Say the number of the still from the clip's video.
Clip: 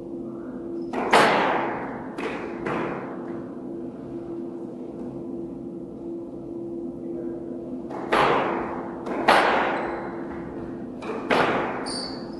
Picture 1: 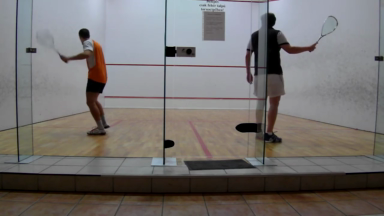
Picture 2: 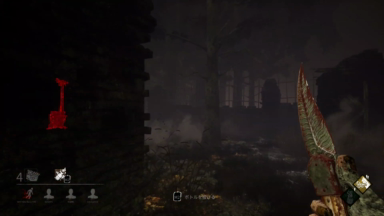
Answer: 1